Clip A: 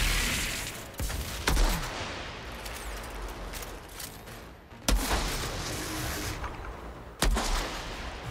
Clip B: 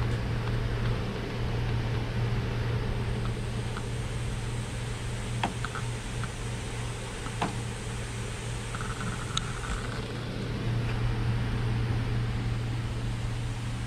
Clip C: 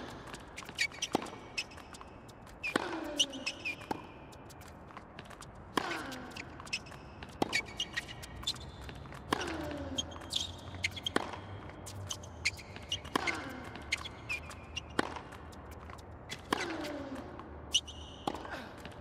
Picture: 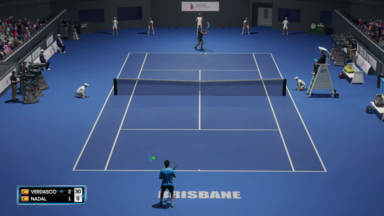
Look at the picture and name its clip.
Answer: C